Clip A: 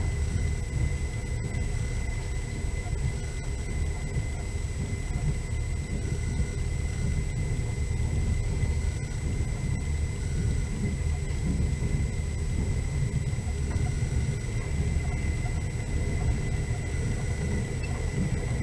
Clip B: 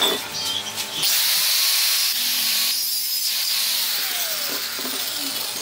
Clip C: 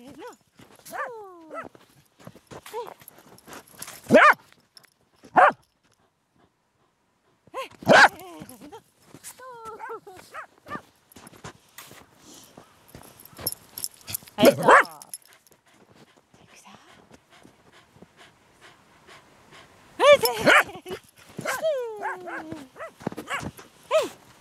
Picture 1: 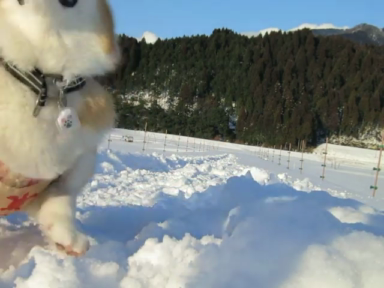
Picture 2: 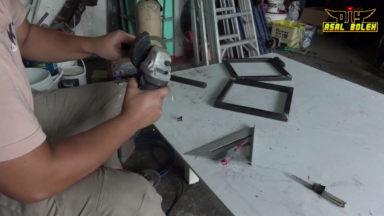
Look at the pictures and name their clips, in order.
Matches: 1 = C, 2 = B